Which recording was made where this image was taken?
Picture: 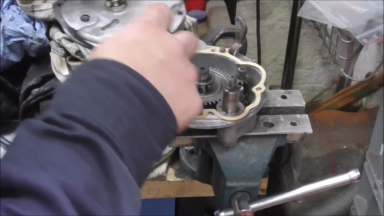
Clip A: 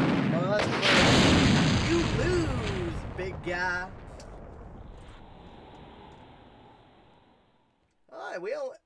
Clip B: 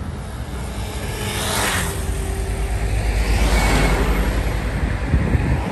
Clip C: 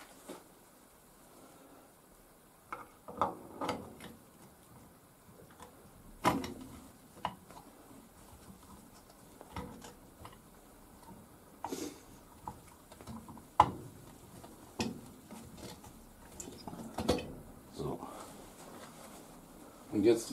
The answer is C